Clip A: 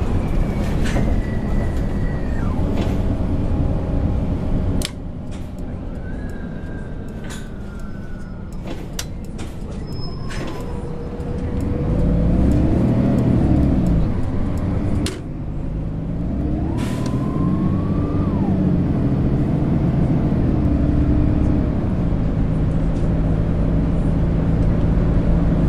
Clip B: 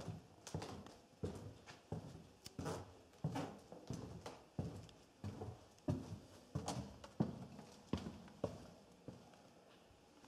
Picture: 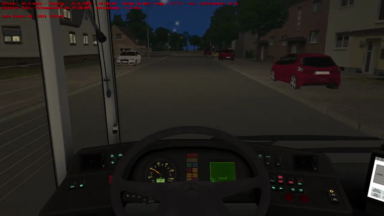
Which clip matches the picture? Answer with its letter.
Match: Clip A